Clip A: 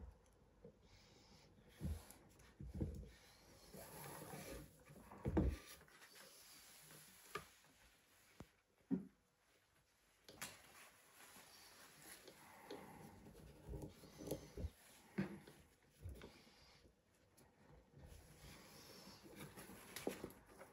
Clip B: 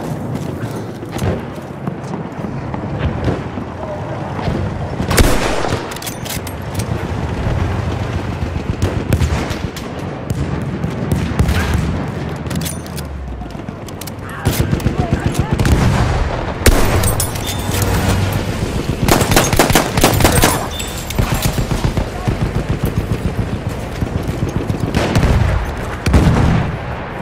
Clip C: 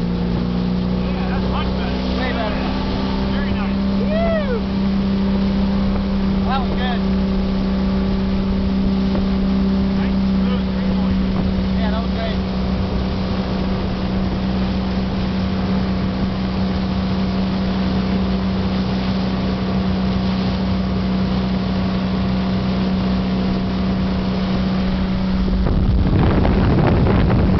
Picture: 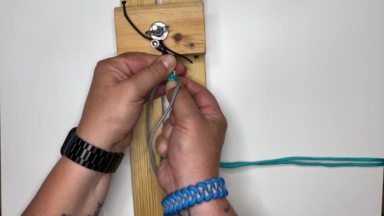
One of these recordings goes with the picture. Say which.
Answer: A